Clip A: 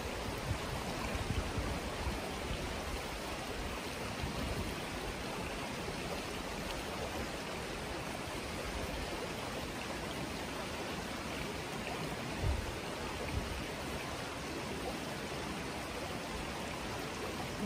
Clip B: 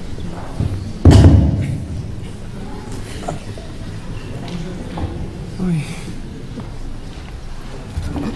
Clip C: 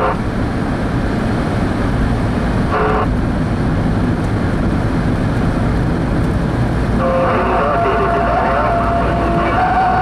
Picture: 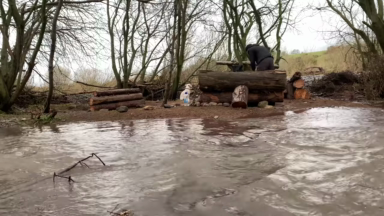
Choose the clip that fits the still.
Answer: A